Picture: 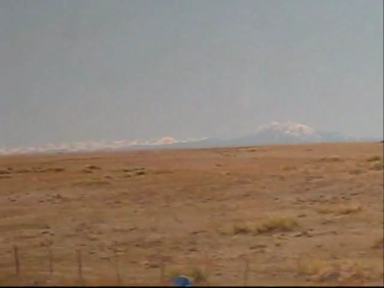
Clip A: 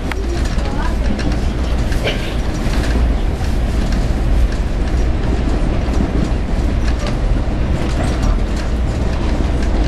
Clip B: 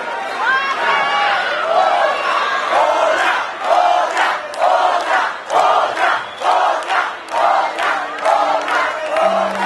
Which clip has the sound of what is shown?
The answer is A